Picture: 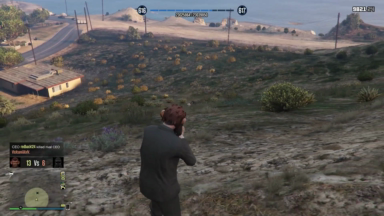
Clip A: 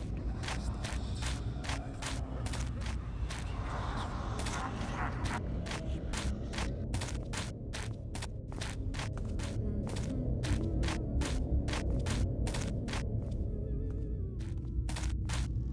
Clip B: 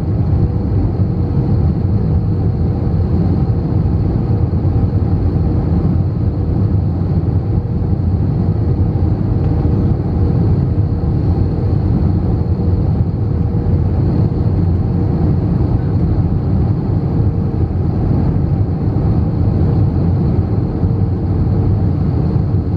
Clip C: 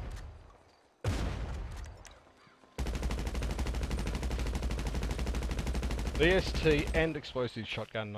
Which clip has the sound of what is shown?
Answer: C